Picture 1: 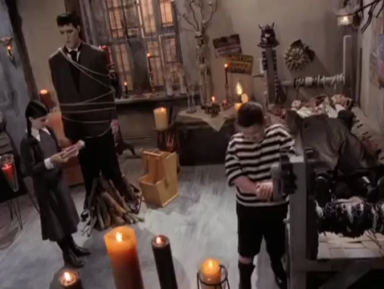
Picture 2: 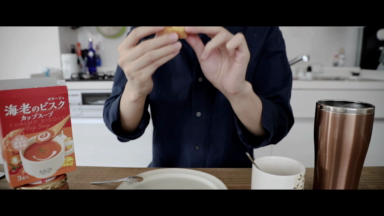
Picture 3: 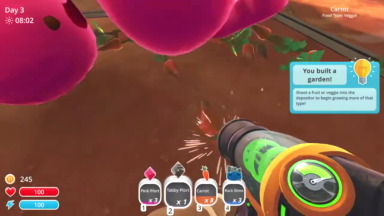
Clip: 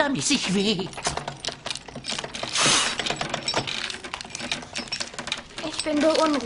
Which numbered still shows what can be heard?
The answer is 1